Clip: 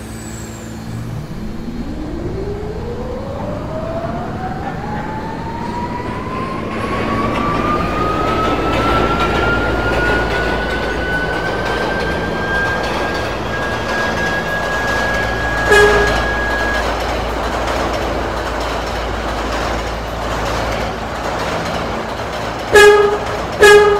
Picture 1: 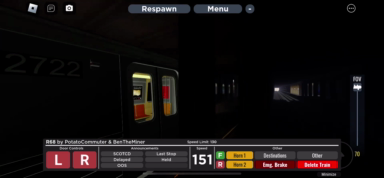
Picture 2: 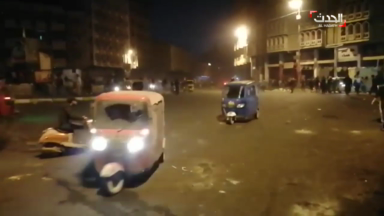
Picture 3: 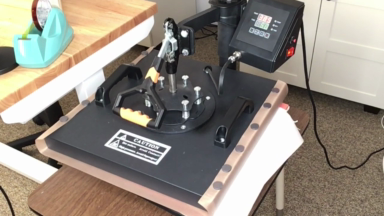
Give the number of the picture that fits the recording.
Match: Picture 1